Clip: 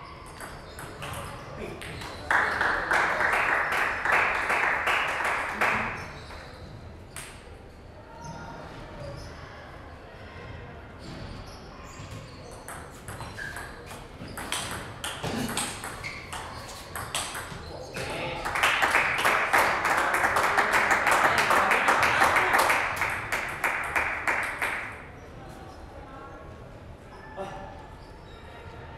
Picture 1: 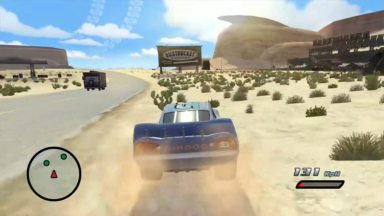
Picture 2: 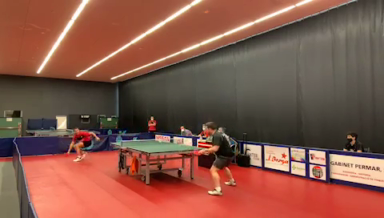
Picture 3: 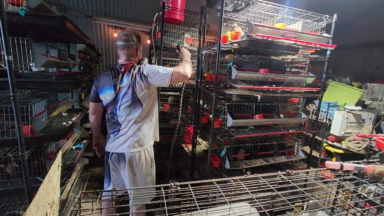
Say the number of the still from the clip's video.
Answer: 2